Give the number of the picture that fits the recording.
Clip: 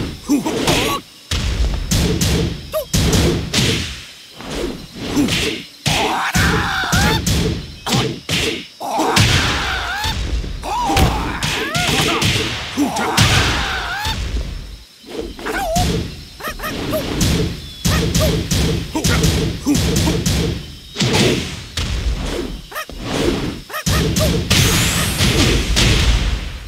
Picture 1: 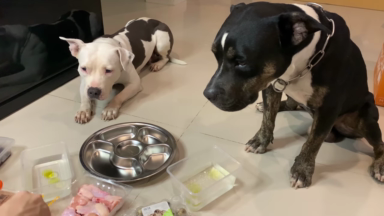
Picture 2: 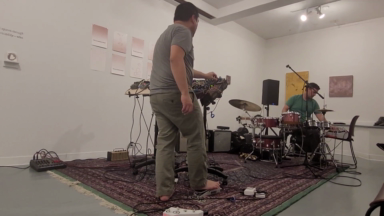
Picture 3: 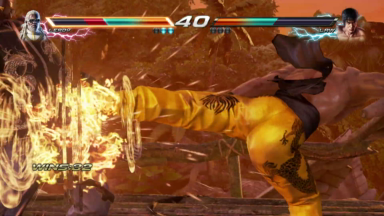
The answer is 3